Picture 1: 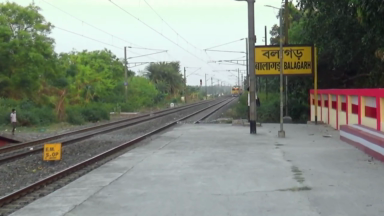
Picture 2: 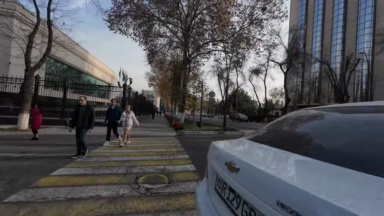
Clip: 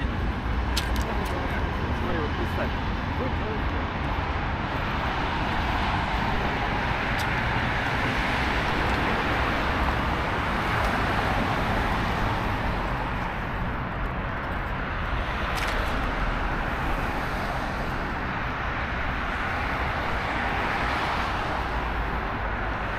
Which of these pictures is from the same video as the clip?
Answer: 2